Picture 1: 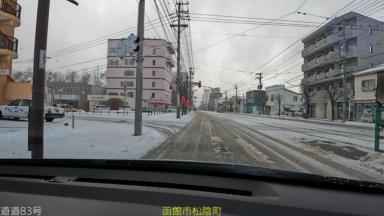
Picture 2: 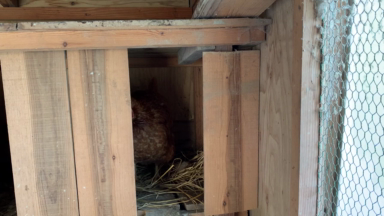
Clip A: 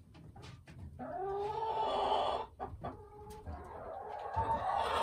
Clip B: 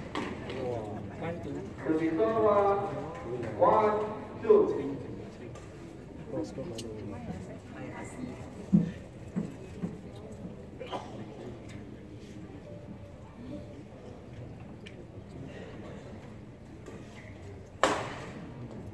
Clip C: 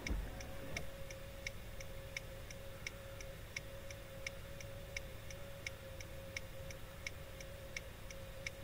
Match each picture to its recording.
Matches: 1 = C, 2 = A